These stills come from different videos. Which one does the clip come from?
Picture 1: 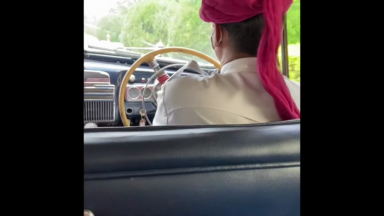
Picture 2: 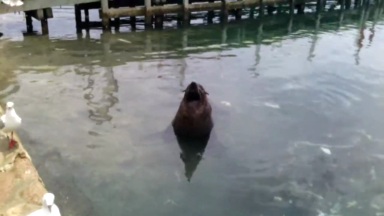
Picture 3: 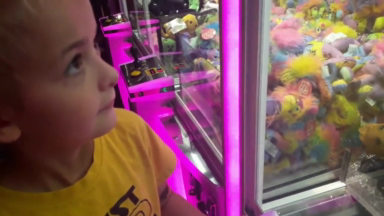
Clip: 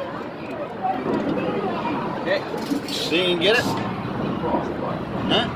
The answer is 3